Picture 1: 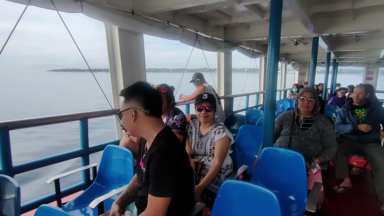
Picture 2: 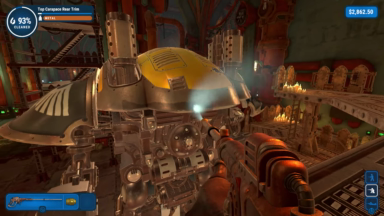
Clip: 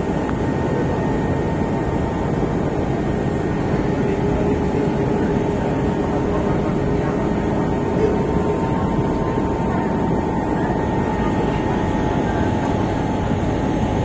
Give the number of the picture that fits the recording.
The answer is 1